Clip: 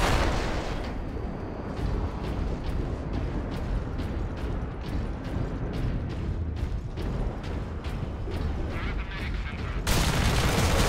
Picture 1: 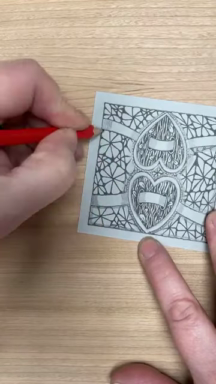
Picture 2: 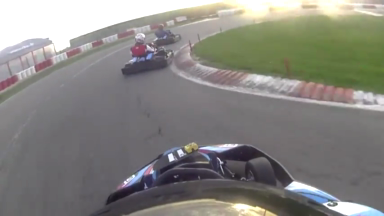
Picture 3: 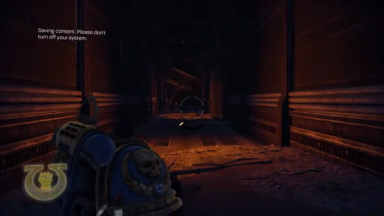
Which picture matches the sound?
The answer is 3